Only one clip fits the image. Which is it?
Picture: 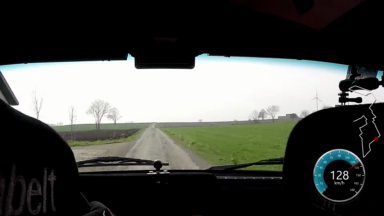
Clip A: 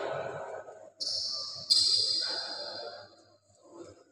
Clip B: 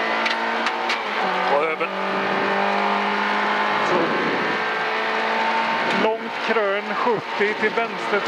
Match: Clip B